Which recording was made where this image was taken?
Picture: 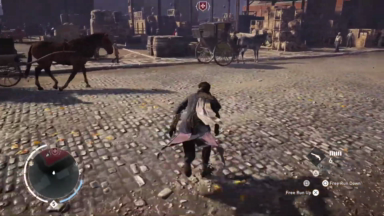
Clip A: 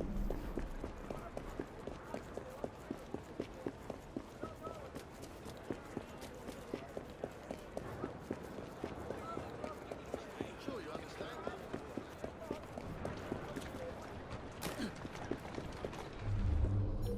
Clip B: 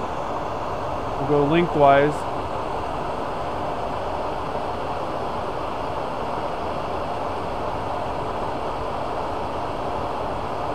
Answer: A